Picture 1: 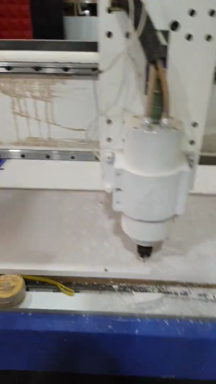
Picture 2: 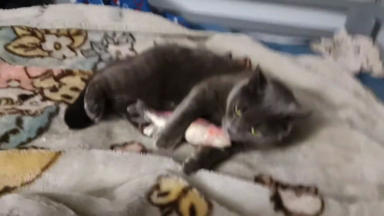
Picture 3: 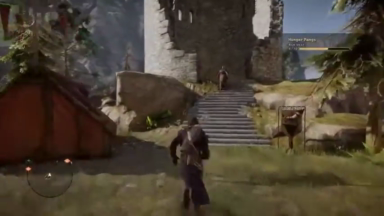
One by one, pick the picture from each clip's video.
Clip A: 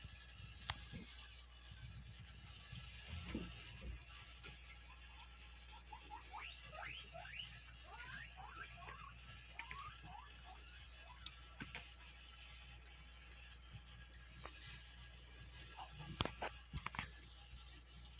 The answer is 2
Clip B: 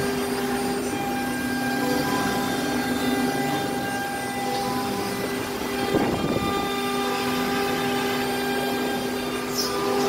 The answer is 1